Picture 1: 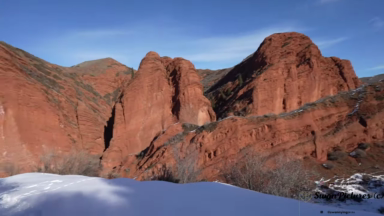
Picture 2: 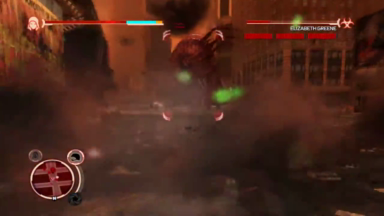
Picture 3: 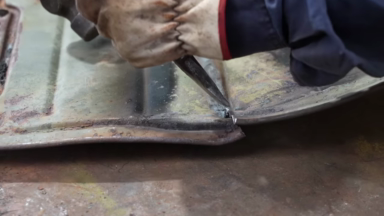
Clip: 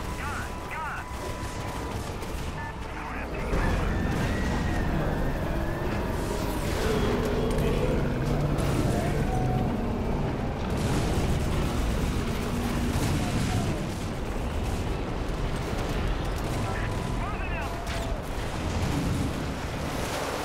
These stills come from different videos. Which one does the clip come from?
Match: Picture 2